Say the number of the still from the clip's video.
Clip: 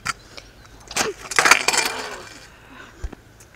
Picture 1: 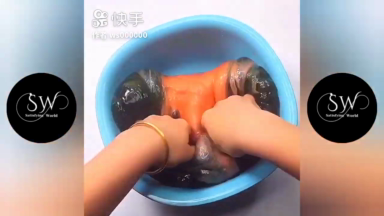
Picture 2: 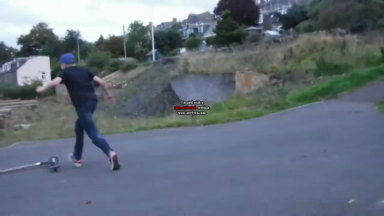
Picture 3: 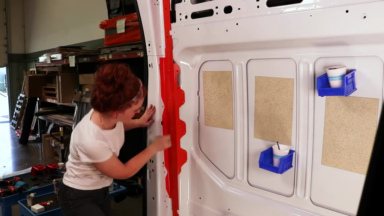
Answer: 2